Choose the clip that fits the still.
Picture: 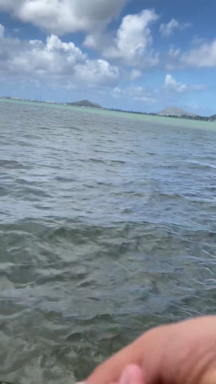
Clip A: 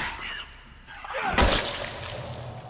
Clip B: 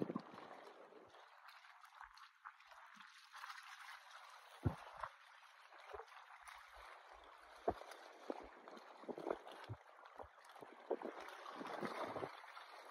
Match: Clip B